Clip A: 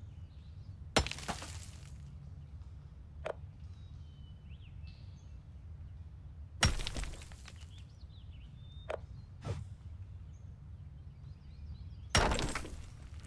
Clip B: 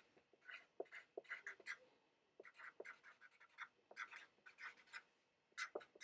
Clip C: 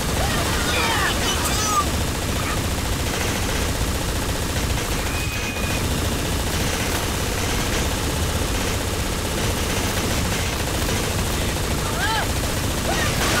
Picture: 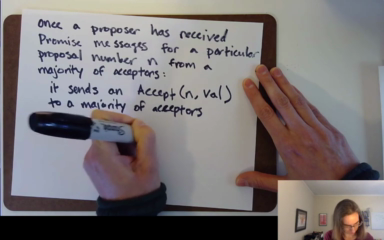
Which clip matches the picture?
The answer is B